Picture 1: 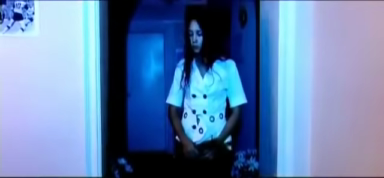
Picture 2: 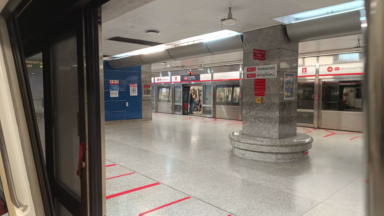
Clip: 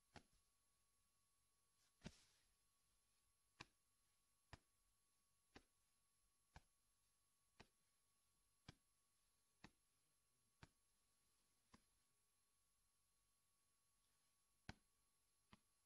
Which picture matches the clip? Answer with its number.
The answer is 1